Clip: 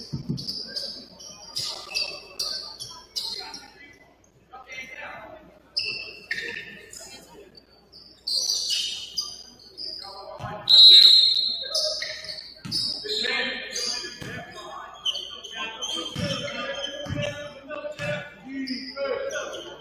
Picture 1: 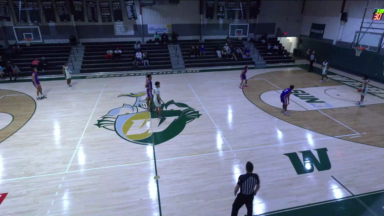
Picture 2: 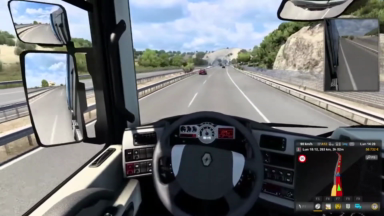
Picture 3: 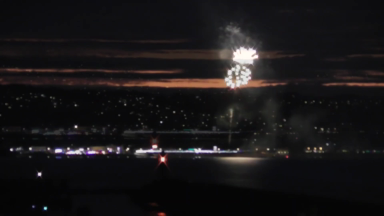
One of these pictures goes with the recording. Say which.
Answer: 1